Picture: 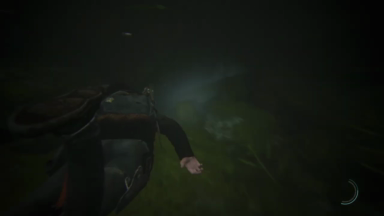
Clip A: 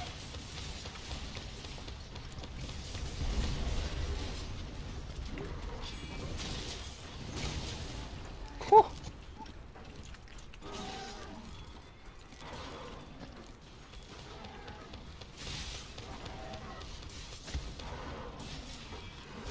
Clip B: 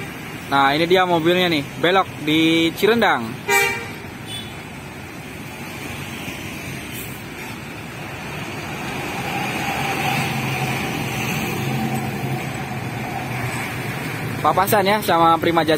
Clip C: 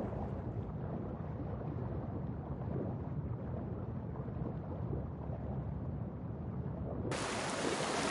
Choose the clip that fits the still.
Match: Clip C